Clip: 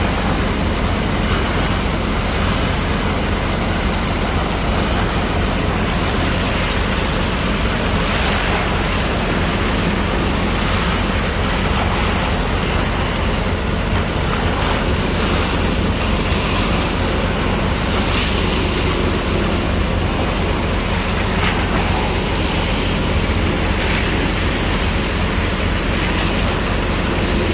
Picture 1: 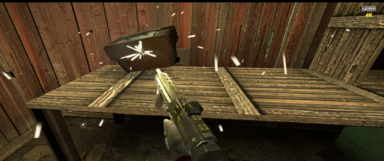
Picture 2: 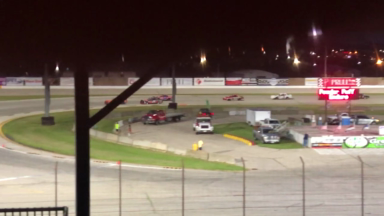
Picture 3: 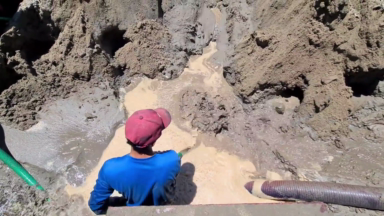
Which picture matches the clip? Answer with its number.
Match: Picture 3